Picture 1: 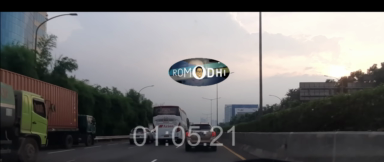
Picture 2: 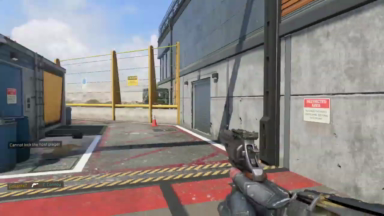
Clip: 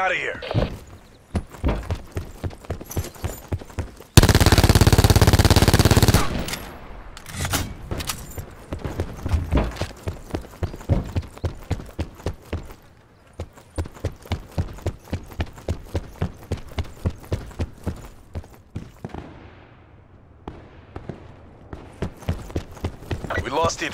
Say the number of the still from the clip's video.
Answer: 2